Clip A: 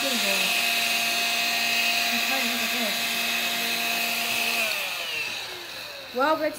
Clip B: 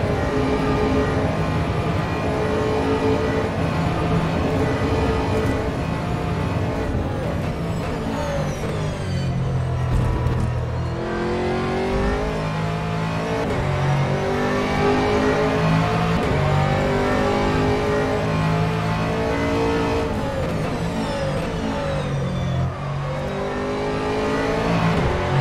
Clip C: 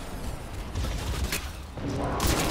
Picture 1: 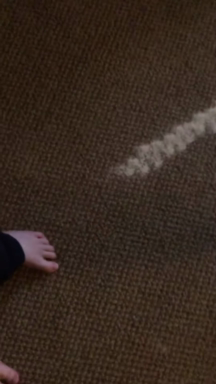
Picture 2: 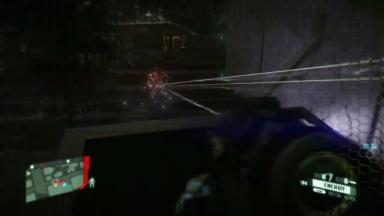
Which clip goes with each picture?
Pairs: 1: A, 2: C